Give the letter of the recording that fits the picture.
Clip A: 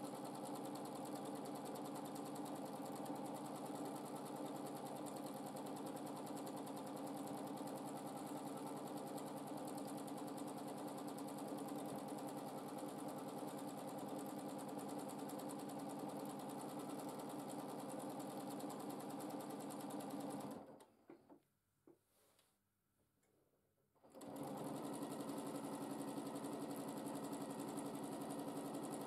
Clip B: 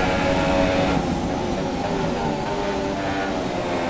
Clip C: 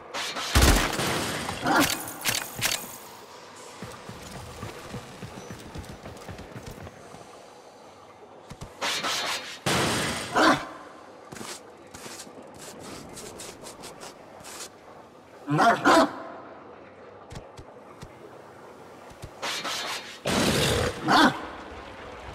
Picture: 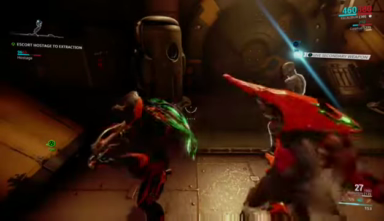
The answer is C